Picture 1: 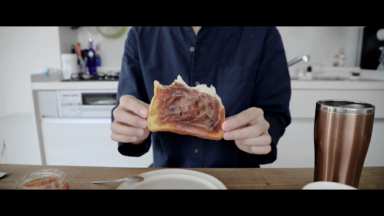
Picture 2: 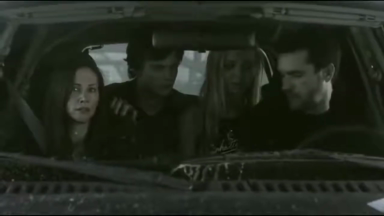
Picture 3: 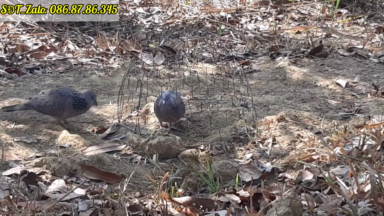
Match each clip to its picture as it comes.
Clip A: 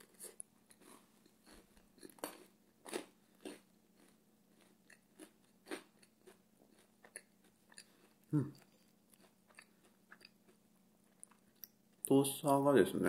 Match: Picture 1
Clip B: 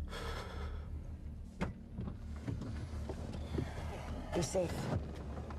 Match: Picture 2